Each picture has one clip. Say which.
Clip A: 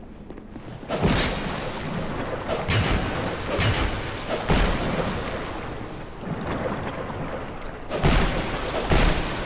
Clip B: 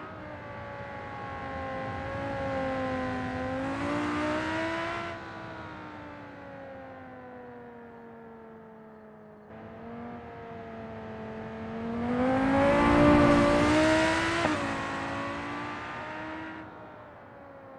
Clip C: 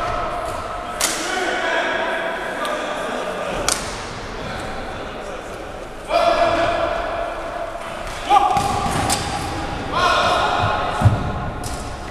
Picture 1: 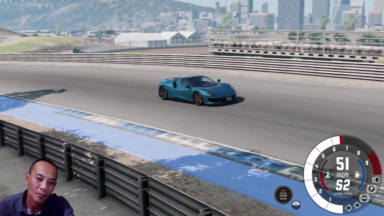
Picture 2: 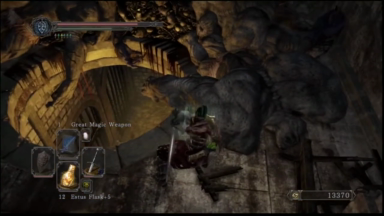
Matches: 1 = B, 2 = A